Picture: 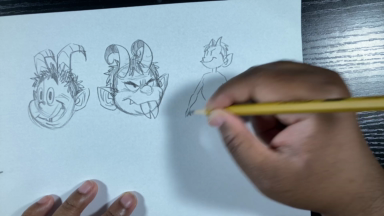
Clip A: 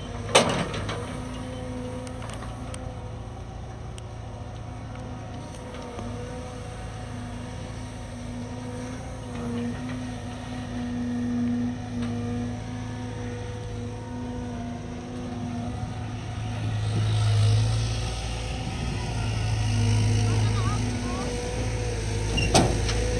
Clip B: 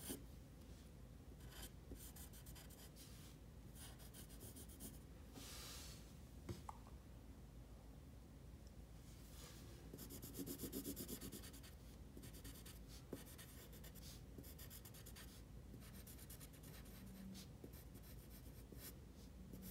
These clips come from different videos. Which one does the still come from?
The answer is B